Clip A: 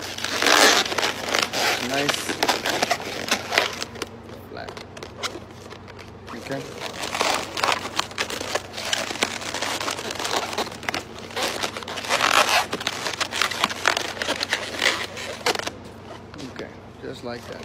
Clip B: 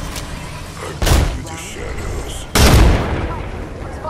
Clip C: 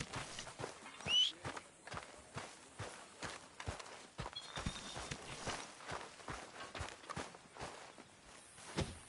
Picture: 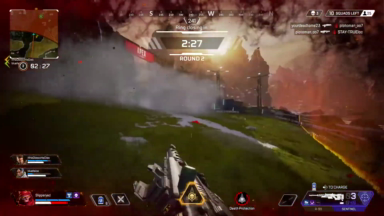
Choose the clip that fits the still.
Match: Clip B